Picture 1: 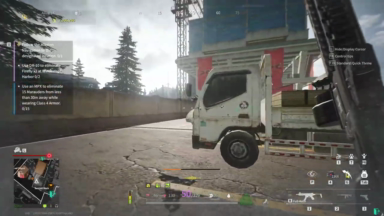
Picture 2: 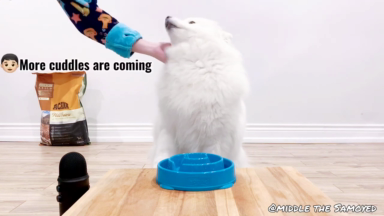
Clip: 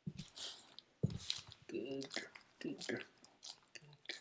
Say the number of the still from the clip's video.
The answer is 2